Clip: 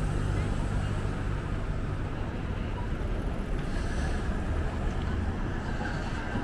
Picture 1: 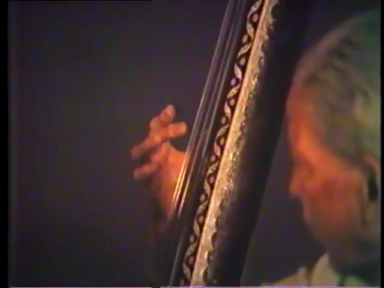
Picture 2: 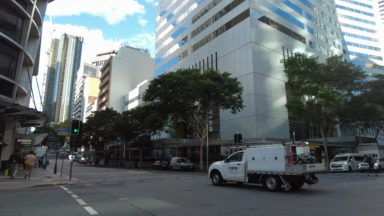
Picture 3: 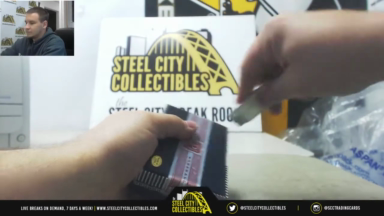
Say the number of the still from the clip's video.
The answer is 2